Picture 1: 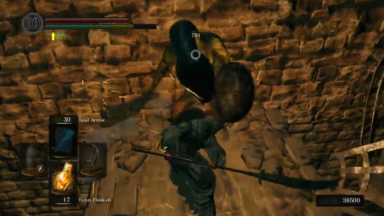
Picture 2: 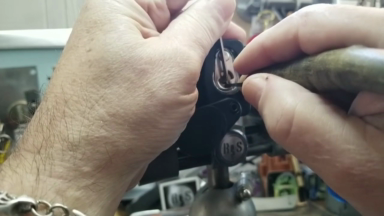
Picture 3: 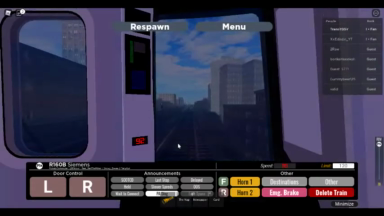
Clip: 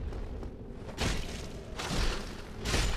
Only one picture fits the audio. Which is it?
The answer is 1